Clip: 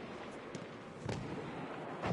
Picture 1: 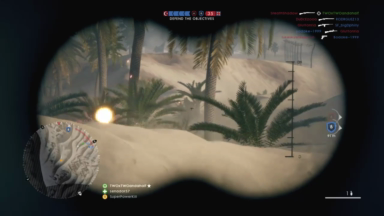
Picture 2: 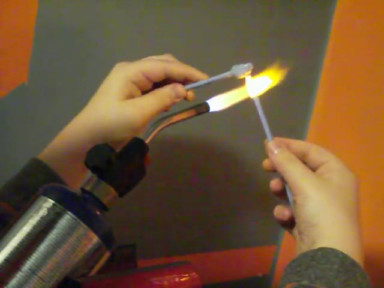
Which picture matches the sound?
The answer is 1